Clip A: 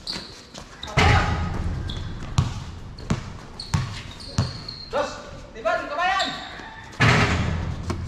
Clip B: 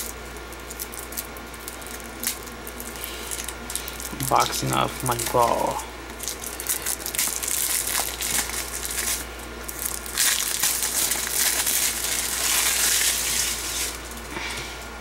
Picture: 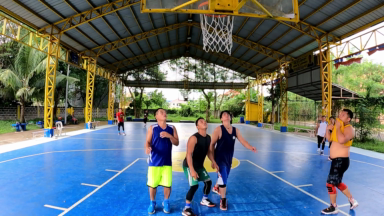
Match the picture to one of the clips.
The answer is A